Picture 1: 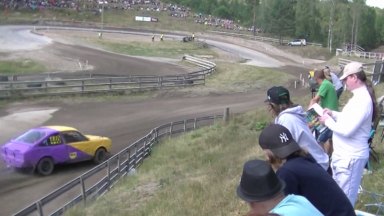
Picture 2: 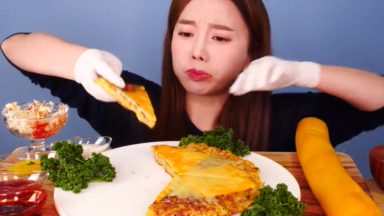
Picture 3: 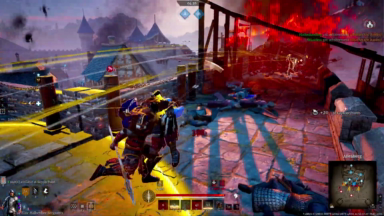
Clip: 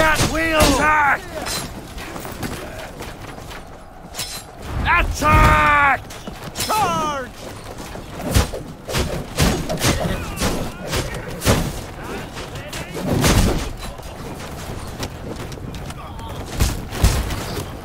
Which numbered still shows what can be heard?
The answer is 3